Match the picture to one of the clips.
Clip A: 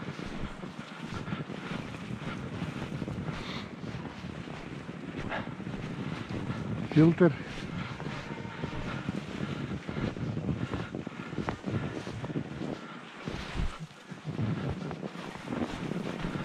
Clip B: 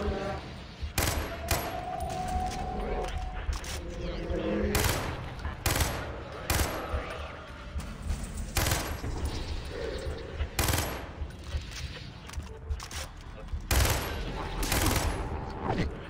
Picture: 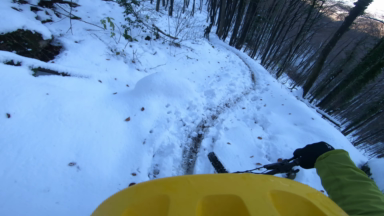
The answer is A